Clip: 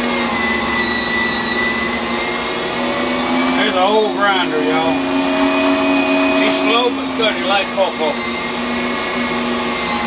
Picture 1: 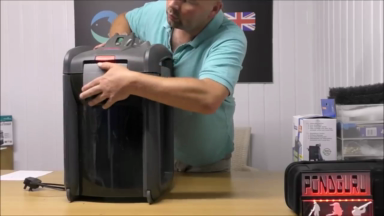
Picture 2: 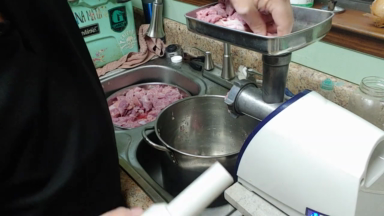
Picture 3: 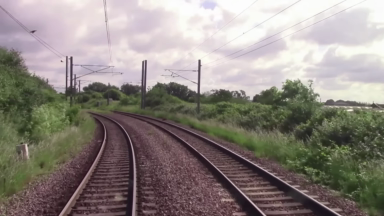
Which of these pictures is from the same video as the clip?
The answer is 2